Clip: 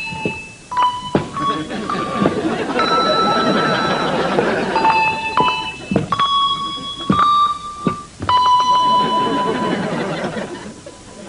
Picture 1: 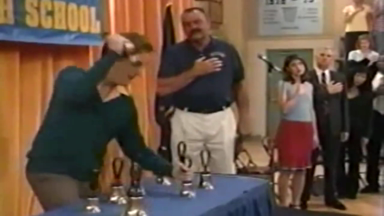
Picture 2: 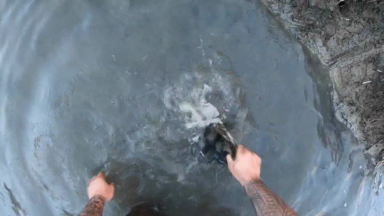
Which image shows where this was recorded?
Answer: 1